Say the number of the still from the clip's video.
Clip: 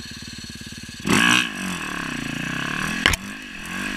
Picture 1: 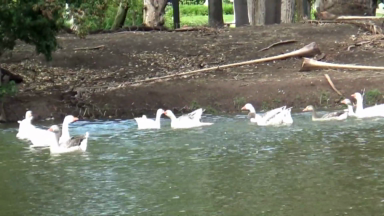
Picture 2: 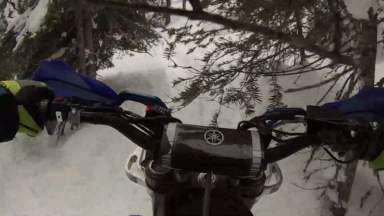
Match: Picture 2